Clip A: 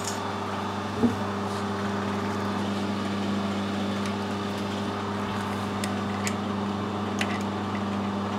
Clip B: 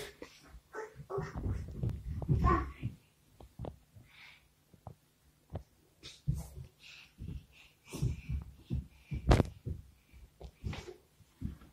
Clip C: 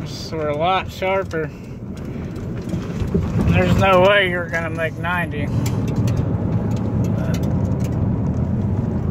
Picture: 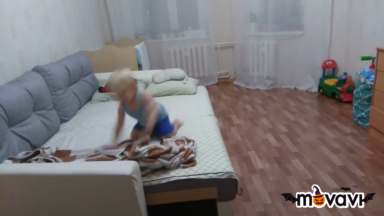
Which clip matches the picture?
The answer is B